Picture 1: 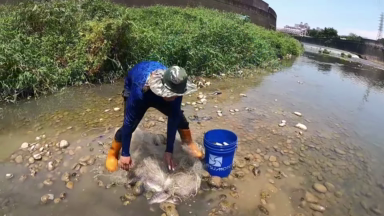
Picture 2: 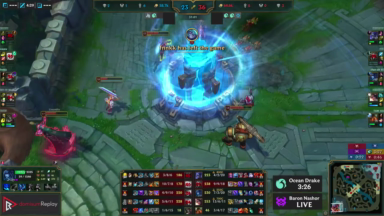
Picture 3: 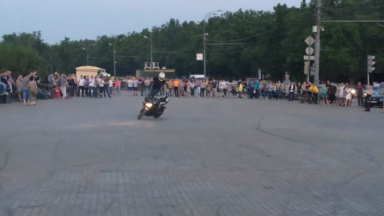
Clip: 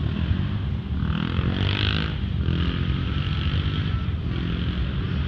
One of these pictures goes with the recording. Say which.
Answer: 3